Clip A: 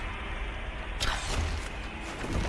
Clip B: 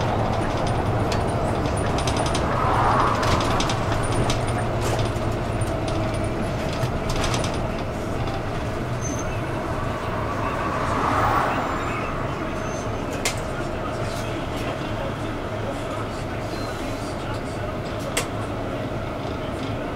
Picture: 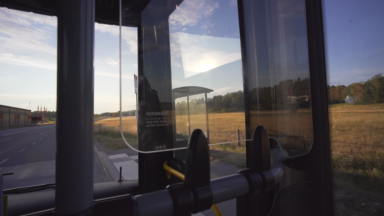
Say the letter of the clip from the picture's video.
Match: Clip B